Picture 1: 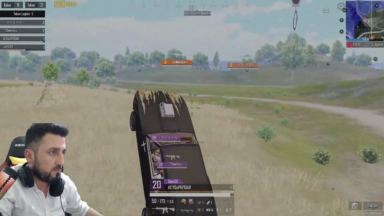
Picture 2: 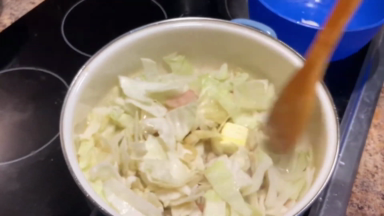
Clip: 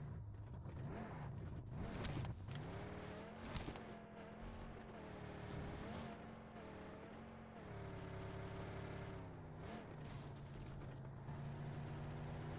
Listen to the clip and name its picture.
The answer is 1